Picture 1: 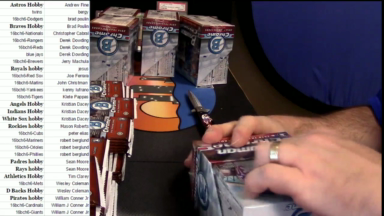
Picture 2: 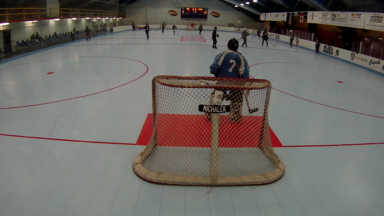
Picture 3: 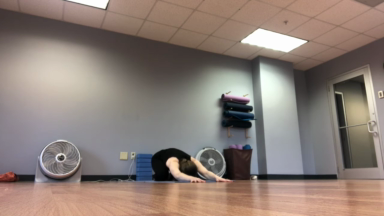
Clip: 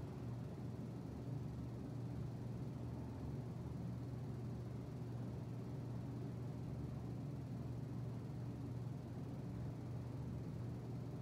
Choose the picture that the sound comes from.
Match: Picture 3